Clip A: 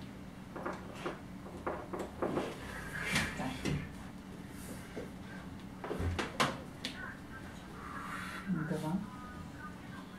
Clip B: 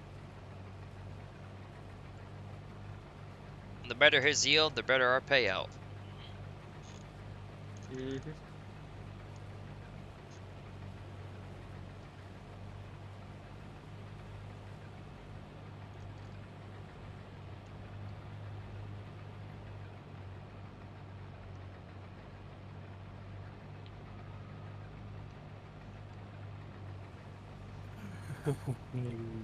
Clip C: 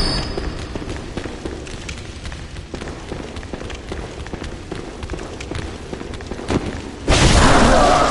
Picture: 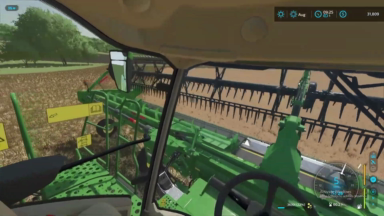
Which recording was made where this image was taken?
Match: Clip B